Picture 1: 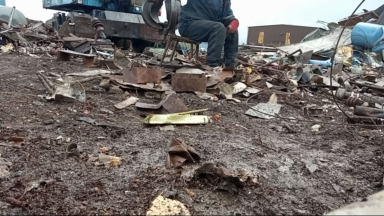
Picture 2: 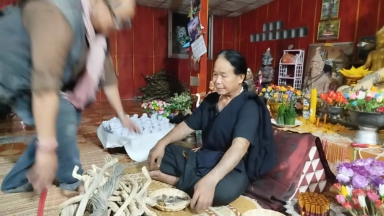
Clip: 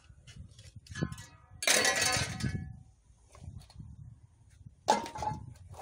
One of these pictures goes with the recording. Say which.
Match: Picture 1